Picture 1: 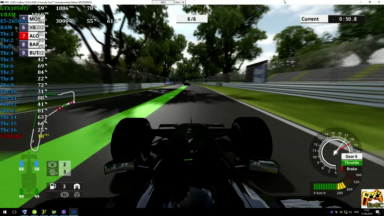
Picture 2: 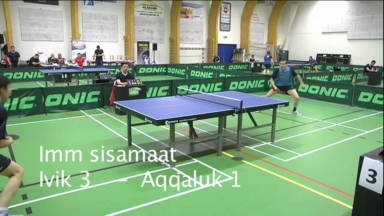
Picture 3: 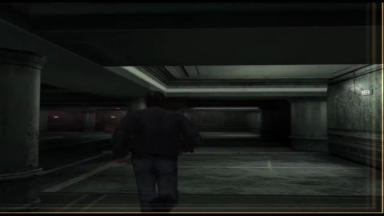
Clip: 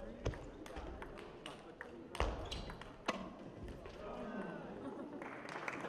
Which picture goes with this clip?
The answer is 2